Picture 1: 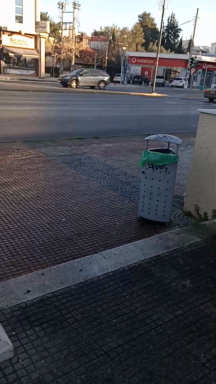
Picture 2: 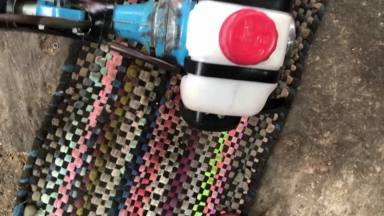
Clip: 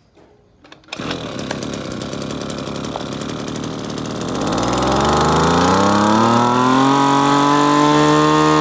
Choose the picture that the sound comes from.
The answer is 2